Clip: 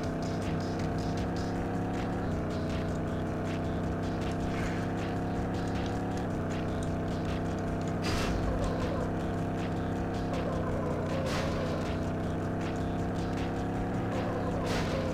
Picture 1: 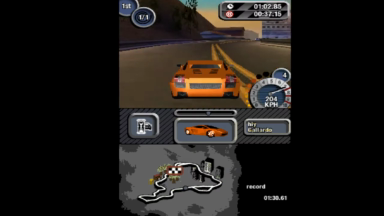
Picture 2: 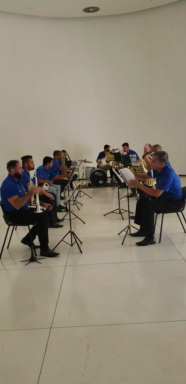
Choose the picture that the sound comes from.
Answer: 1